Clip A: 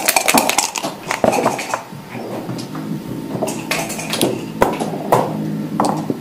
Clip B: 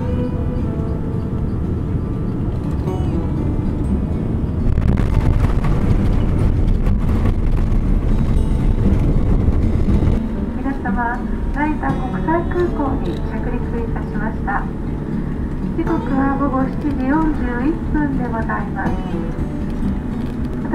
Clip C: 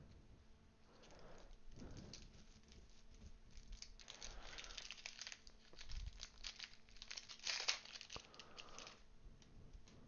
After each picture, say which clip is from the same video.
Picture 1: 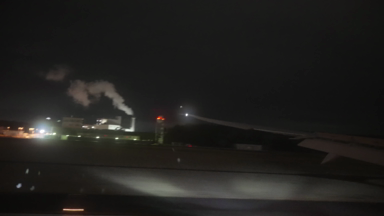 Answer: B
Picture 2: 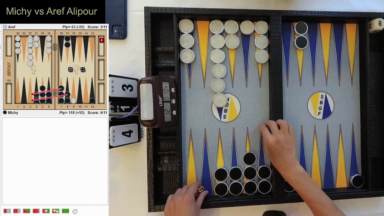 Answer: A